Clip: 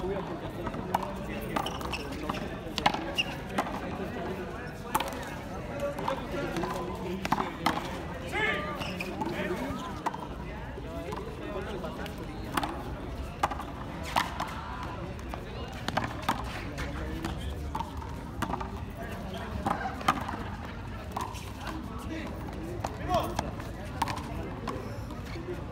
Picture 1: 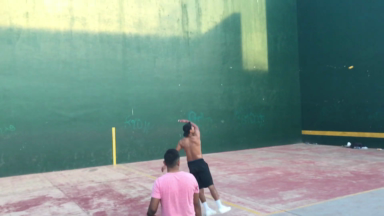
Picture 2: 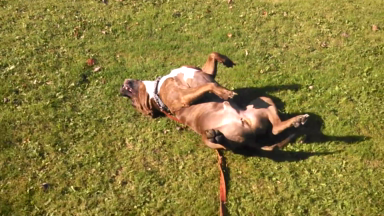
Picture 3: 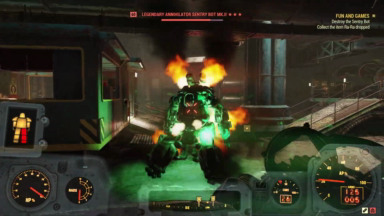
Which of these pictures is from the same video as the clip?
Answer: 1